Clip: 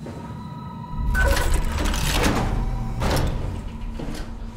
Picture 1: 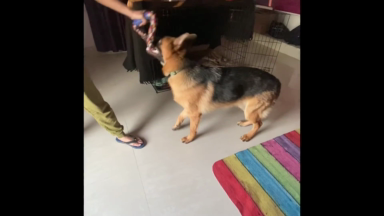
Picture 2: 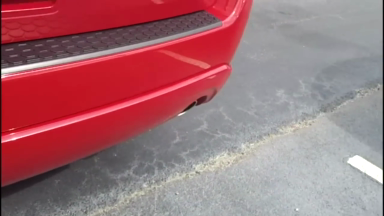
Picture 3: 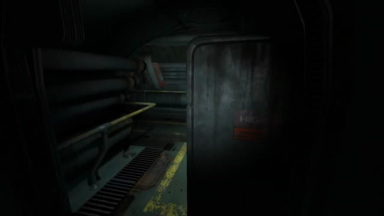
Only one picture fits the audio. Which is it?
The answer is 3